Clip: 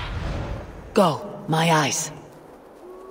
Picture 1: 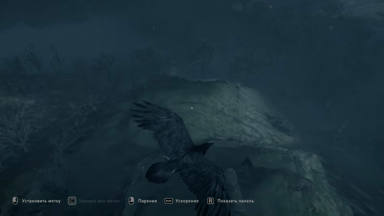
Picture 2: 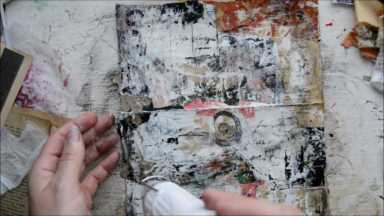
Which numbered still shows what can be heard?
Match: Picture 1